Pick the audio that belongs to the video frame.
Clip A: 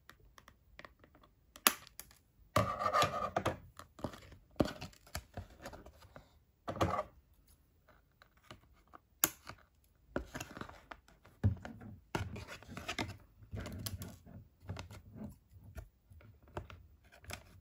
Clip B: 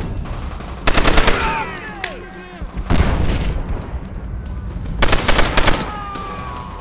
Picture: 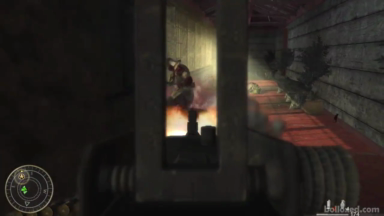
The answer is B